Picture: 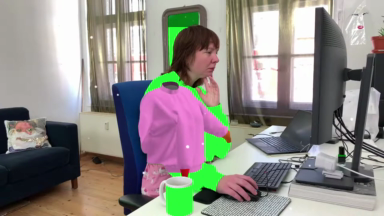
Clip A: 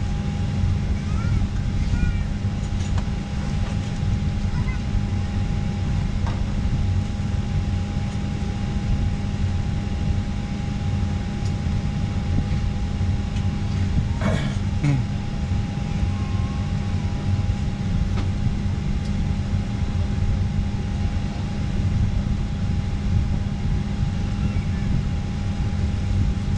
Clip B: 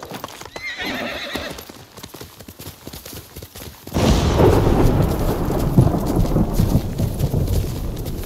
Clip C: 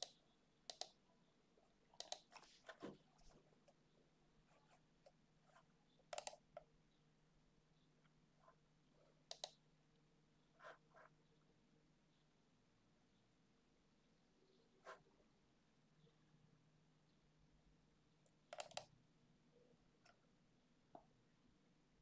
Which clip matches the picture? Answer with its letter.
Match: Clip C